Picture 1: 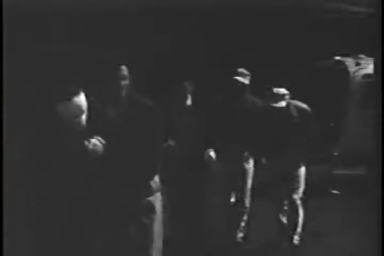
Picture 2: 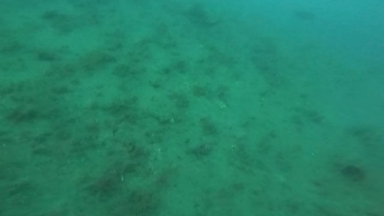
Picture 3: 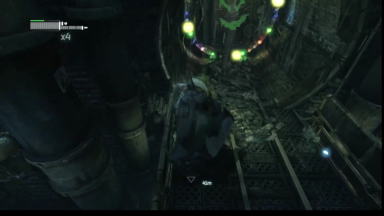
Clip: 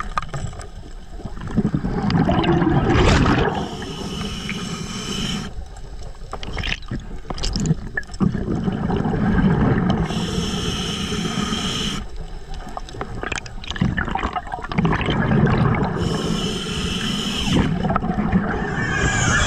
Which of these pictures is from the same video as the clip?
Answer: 2